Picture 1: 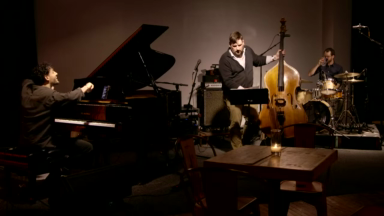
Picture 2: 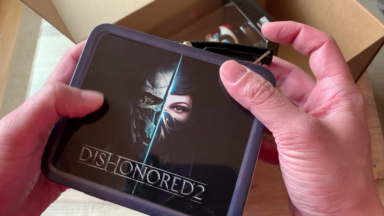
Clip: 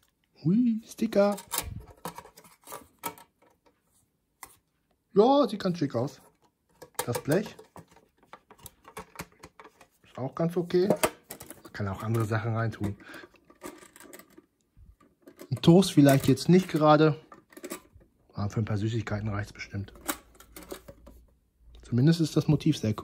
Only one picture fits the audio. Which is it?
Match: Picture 2